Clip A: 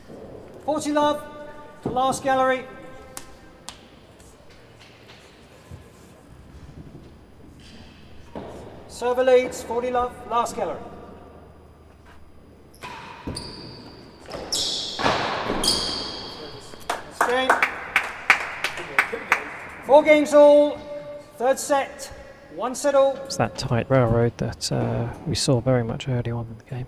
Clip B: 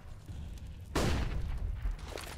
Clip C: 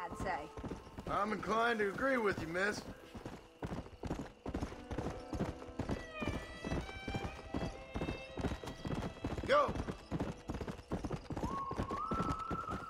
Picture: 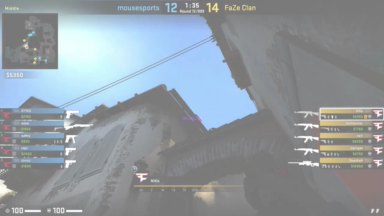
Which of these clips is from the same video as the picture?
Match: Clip B